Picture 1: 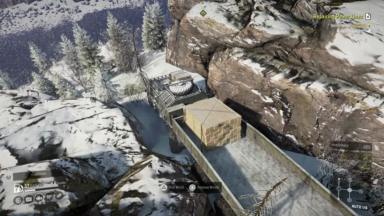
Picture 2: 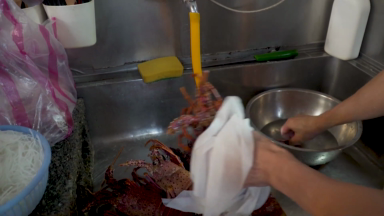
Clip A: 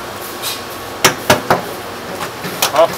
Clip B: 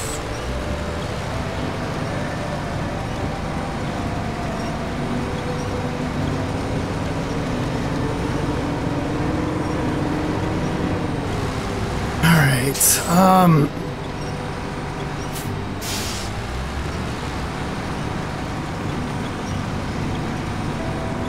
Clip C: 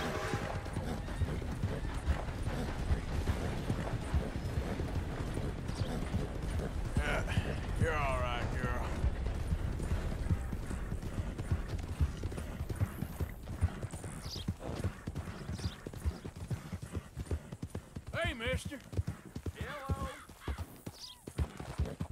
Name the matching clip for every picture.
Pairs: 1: B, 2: A